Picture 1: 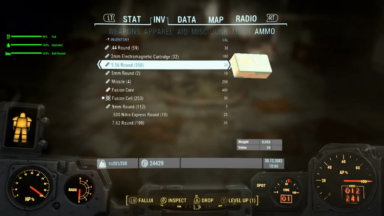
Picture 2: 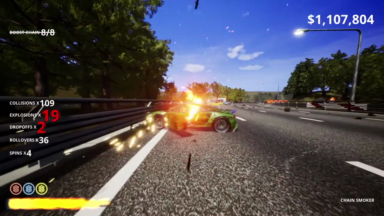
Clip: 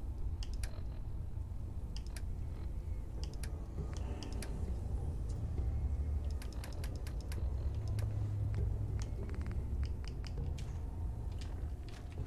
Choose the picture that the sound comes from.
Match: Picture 1